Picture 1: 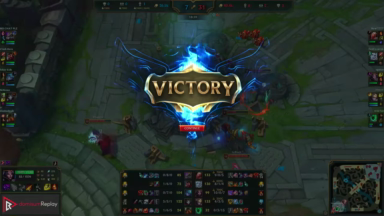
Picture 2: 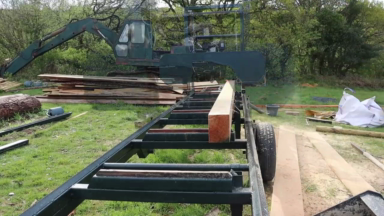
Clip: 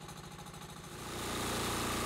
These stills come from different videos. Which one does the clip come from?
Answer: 2